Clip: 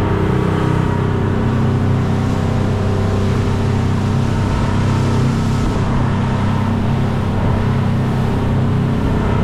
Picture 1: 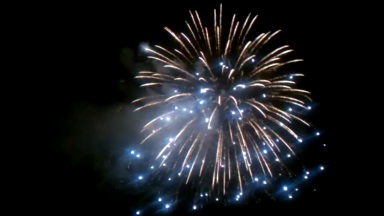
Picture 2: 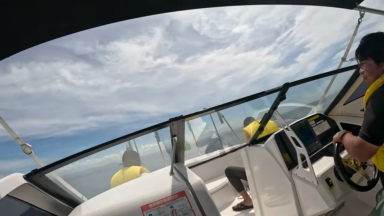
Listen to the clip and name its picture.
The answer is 2